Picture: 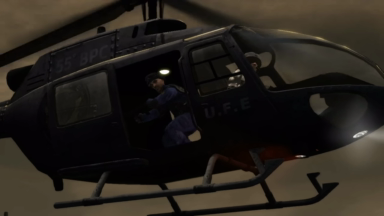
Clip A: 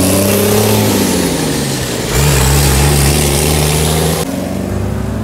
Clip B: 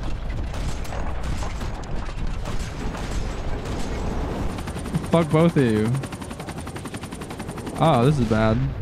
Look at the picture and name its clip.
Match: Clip B